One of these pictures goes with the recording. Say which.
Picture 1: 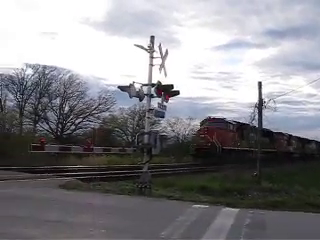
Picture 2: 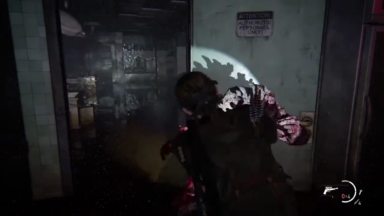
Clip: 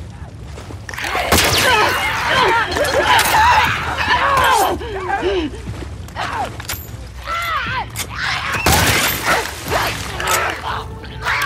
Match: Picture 2